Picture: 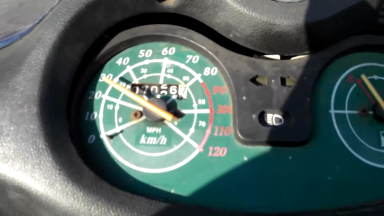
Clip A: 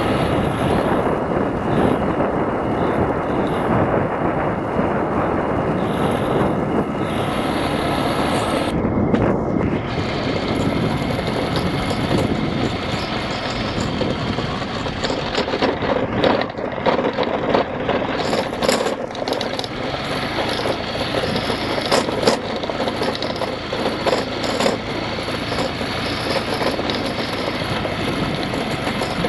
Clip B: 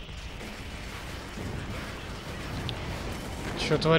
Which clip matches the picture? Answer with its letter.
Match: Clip A